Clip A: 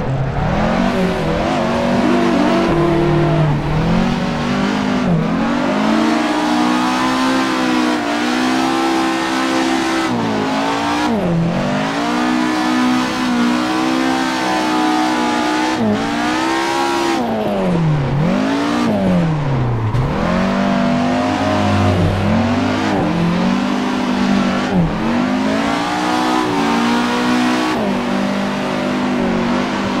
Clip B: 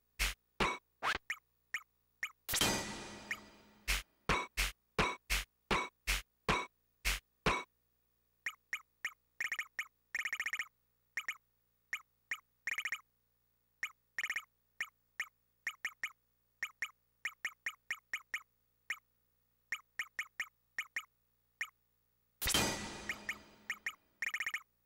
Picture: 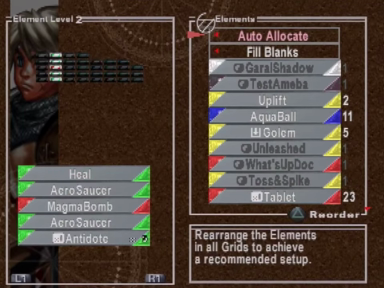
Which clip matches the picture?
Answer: B